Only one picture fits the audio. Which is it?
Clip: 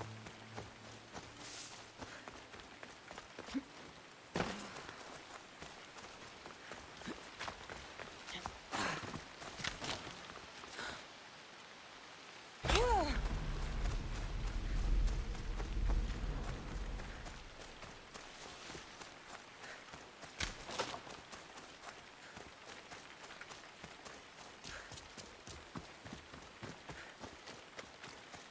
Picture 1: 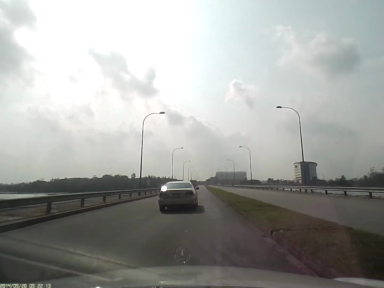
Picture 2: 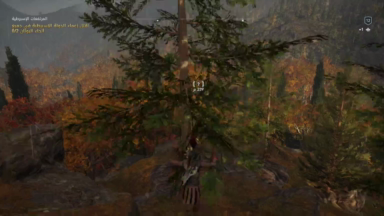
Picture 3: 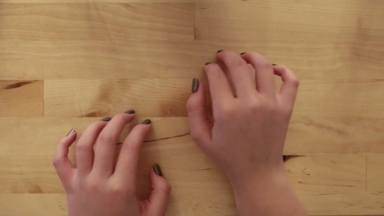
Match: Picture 2